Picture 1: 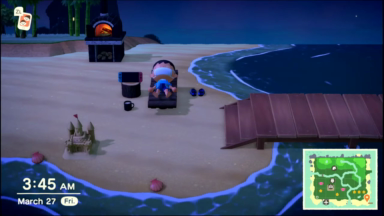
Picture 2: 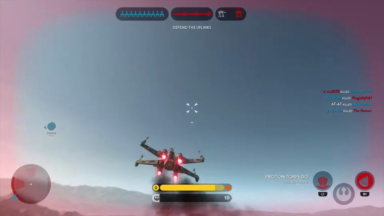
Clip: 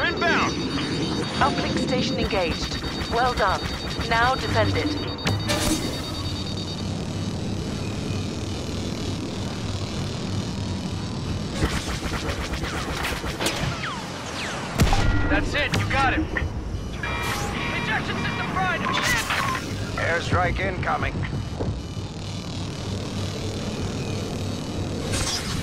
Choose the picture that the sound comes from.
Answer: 2